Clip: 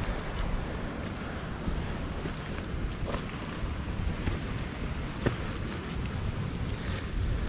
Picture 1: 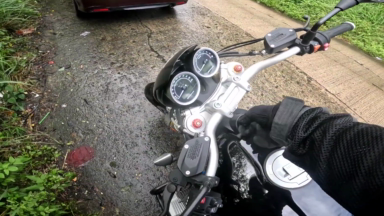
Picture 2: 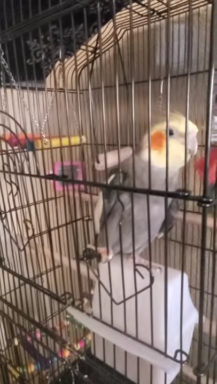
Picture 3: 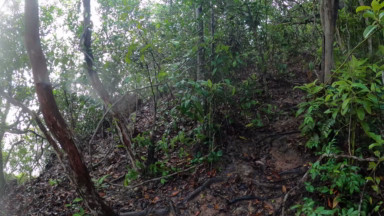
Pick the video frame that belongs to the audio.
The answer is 3